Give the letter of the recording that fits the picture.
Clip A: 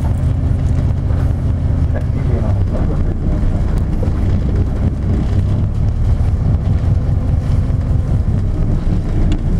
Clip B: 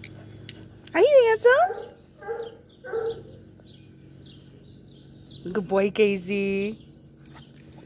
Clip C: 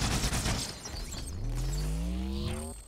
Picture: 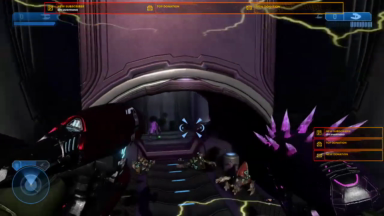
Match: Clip C